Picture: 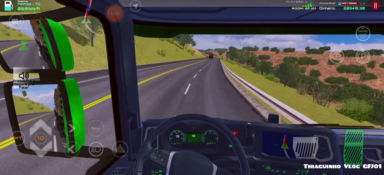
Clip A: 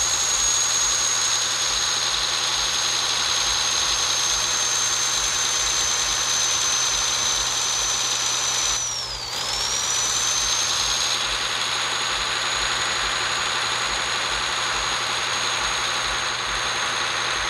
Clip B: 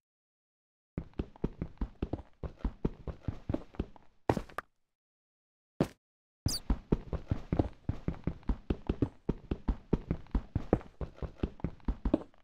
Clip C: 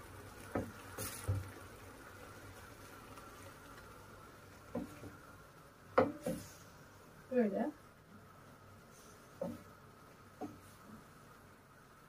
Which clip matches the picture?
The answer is A